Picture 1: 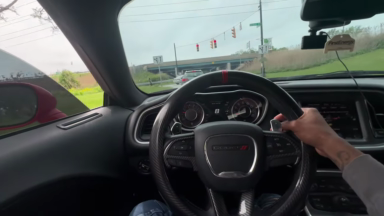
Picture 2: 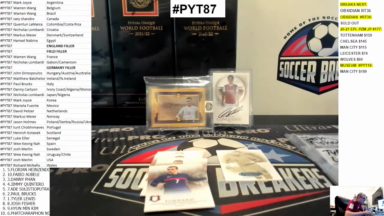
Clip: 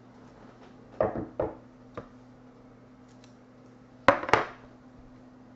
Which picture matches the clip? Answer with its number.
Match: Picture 2